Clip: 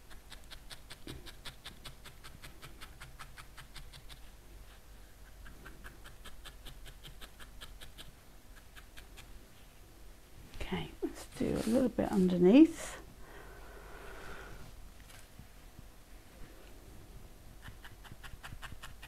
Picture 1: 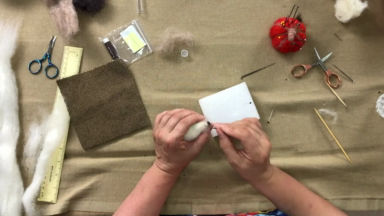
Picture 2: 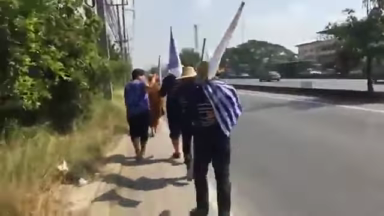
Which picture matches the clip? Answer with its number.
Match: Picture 1